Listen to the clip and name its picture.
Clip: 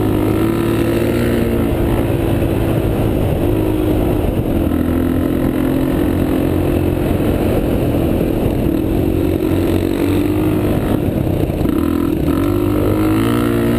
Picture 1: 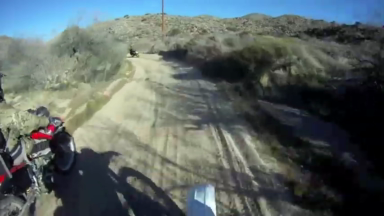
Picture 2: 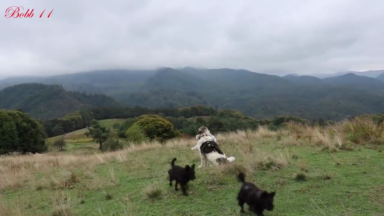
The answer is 1